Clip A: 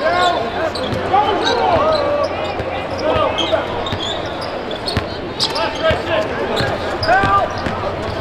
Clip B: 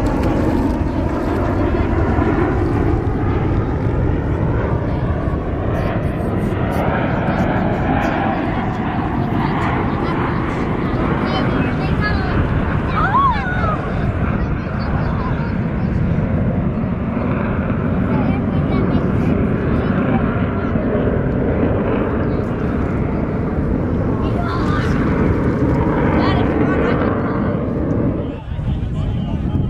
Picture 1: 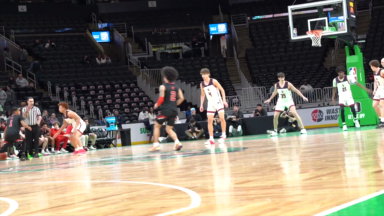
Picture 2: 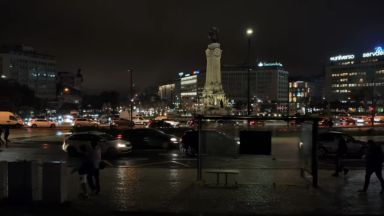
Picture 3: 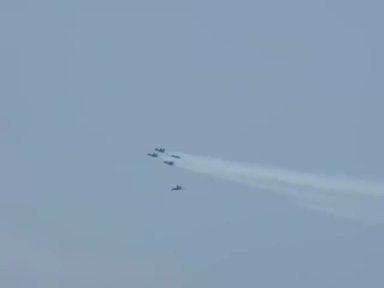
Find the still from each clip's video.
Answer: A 1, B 3